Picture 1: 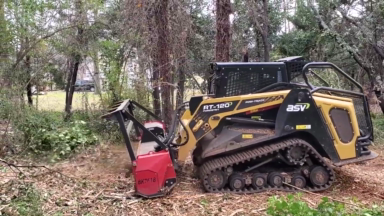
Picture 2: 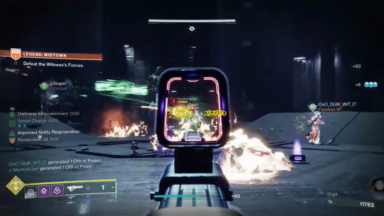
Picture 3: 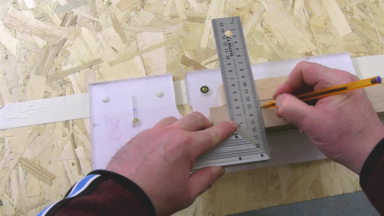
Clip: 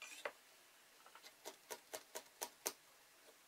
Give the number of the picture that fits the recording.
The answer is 3